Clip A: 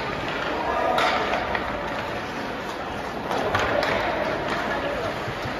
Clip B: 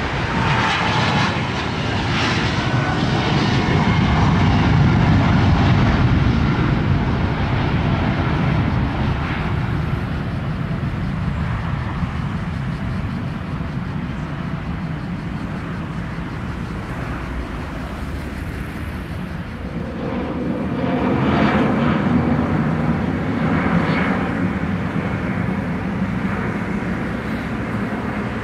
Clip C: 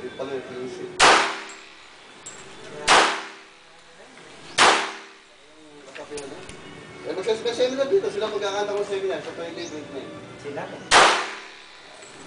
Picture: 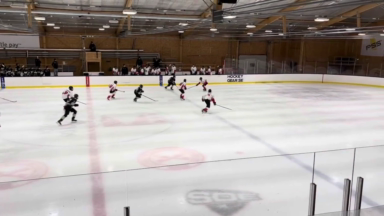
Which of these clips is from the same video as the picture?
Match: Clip A